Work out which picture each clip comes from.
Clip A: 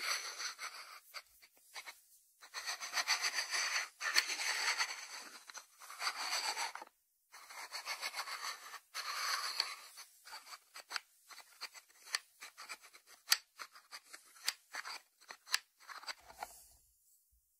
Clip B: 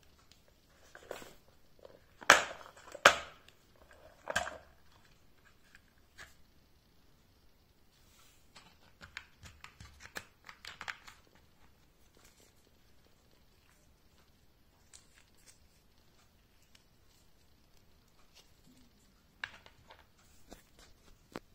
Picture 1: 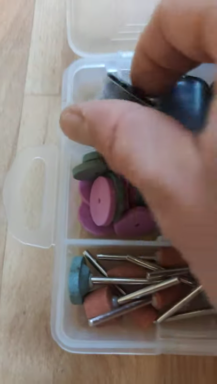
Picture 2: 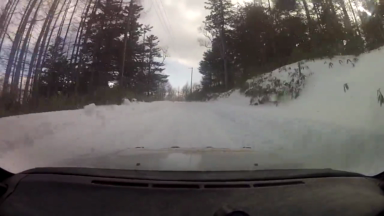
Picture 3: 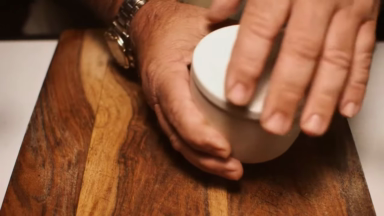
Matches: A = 3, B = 1